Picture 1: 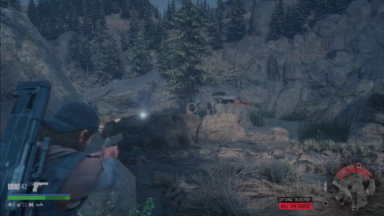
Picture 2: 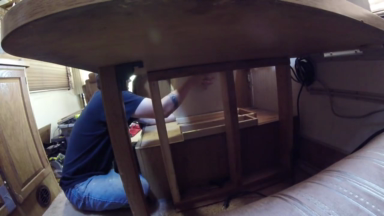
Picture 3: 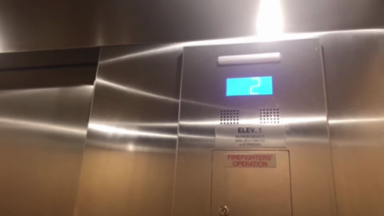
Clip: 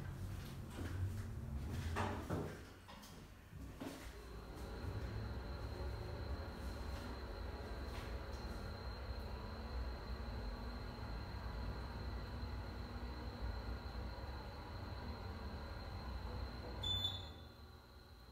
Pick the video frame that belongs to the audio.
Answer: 3